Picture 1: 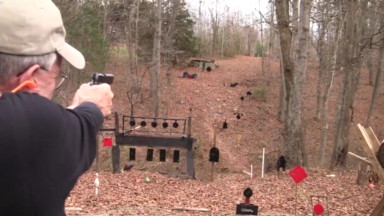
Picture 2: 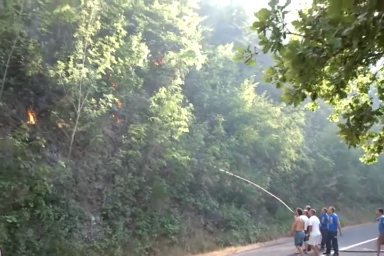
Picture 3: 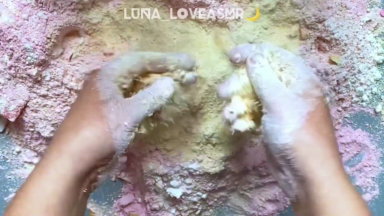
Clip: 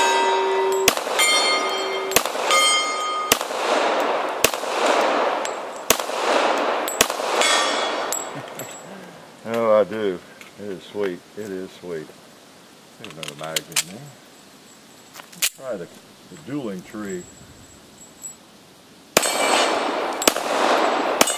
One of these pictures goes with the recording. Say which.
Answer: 1